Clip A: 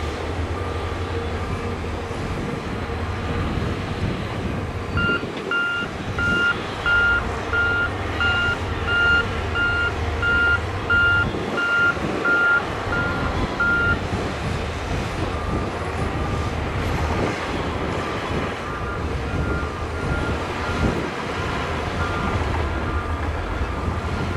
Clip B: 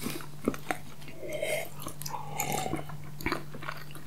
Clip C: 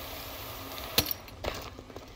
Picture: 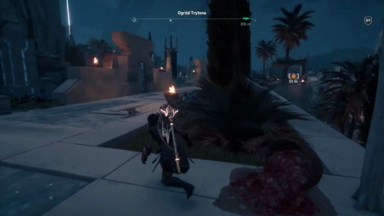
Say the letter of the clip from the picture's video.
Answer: C